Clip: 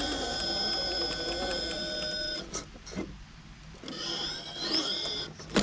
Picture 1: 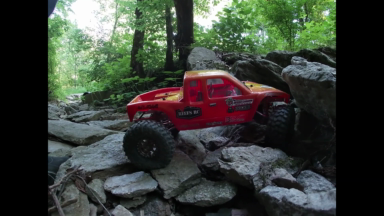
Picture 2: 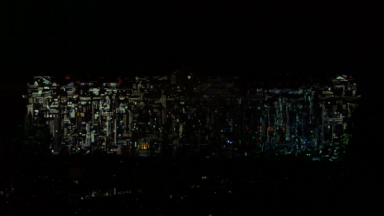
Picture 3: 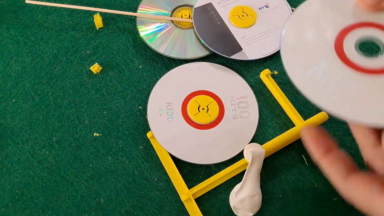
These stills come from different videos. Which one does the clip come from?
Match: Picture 1